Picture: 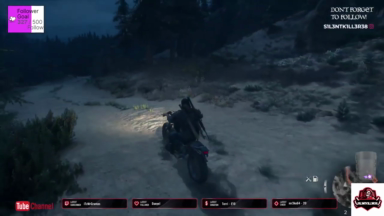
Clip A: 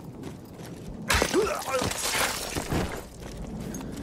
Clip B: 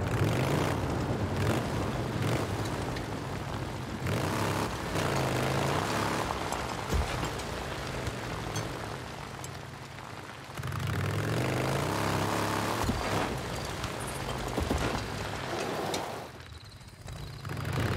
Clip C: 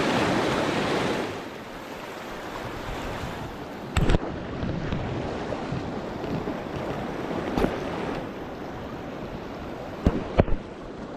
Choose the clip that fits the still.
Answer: B